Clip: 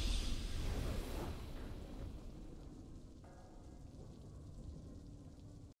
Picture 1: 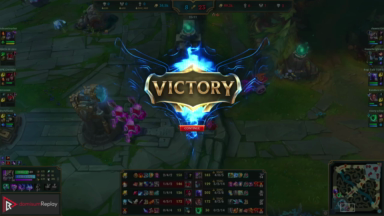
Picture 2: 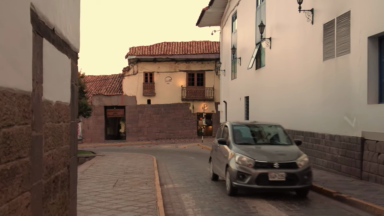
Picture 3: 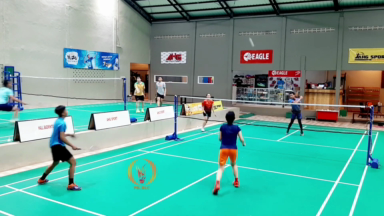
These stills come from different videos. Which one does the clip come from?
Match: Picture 1